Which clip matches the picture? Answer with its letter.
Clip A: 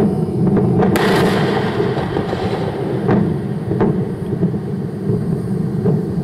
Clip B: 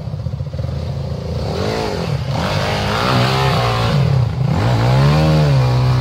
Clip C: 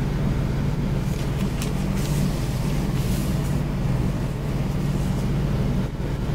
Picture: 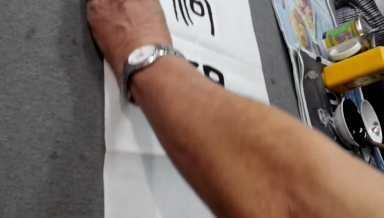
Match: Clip C